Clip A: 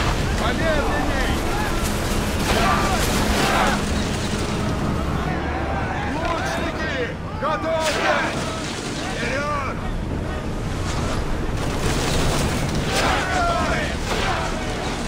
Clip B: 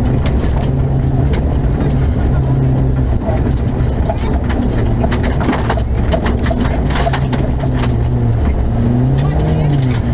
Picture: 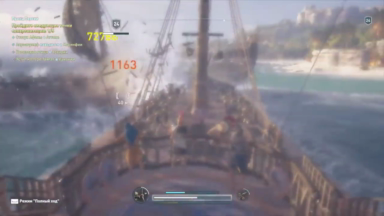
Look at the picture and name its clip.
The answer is A